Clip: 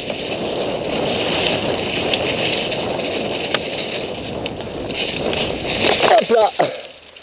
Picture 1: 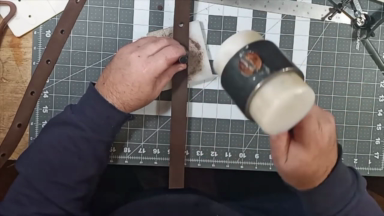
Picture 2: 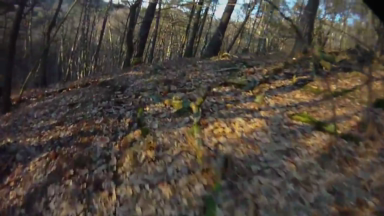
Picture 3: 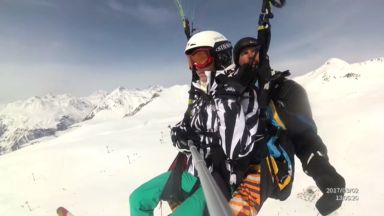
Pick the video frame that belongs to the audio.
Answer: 2